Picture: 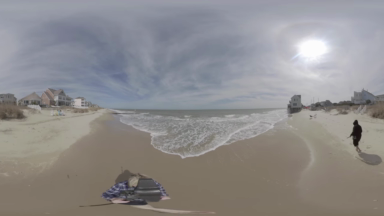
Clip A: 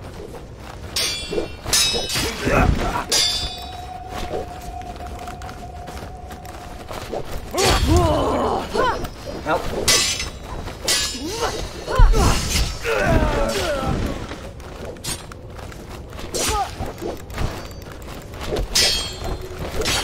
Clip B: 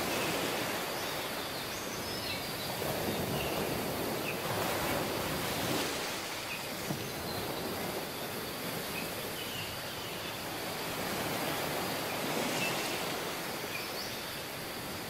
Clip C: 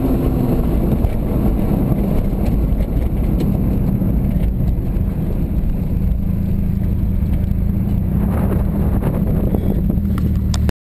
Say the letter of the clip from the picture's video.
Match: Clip B